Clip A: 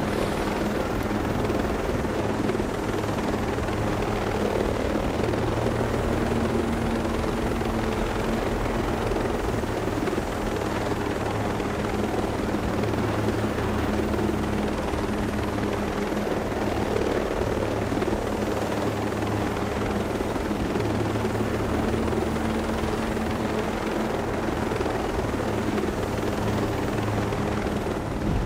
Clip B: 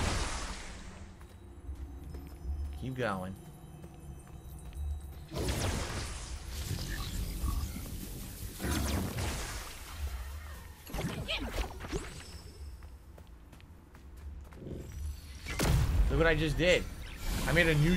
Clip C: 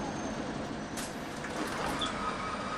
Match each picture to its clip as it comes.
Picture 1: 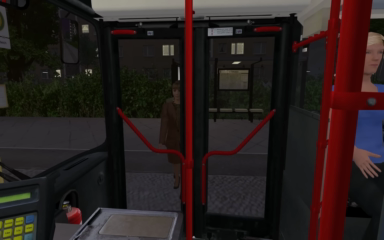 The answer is C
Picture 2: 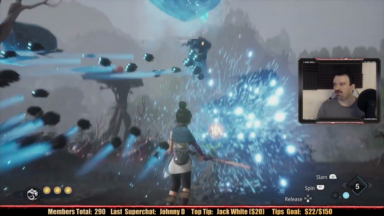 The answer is B